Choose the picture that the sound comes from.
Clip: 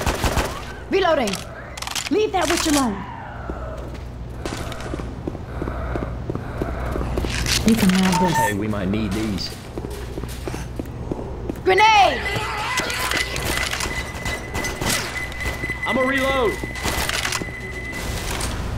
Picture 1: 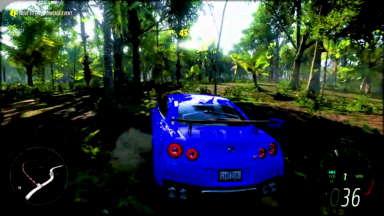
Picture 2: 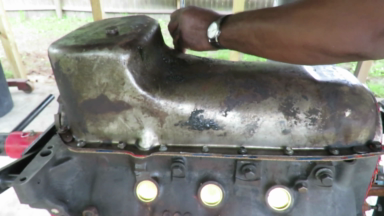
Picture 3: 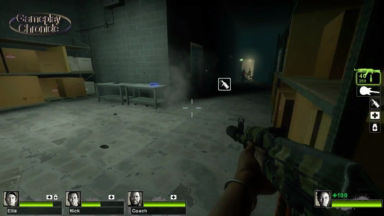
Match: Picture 3